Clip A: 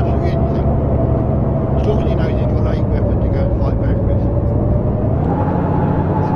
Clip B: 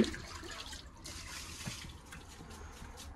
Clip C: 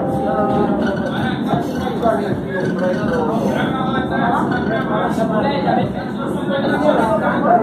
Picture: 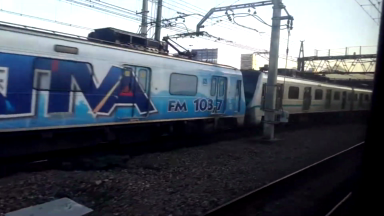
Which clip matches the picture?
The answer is C